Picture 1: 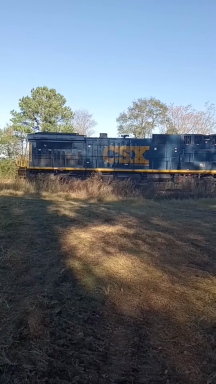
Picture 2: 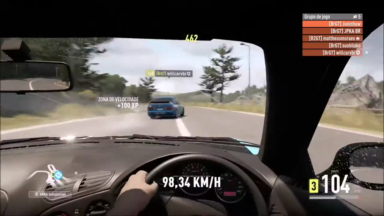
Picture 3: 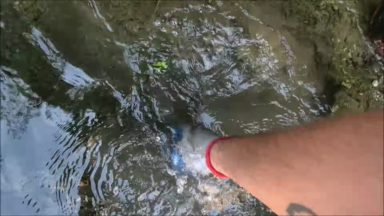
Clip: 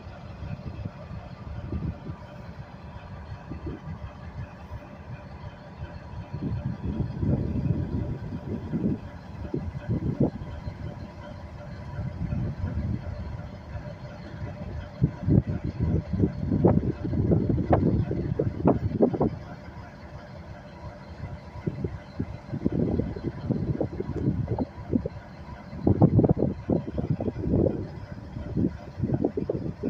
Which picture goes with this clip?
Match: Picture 1